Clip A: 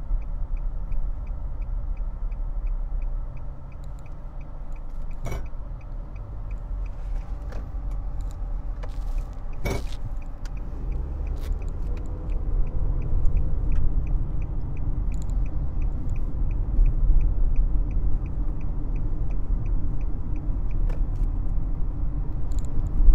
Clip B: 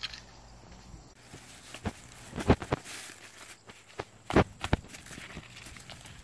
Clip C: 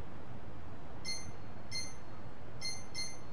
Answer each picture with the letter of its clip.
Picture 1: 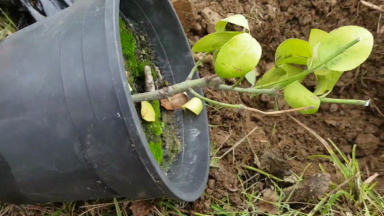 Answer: B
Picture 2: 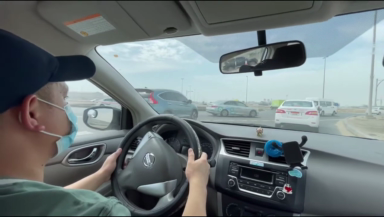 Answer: A